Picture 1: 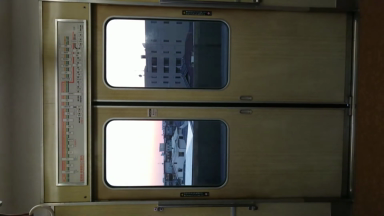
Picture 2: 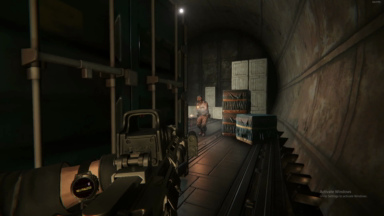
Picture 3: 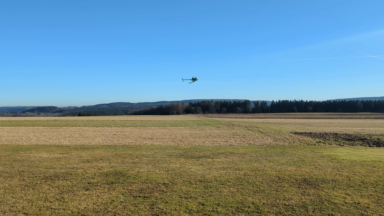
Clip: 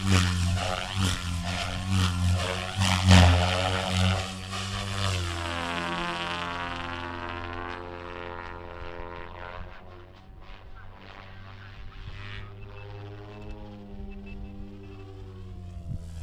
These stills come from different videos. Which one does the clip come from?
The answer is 3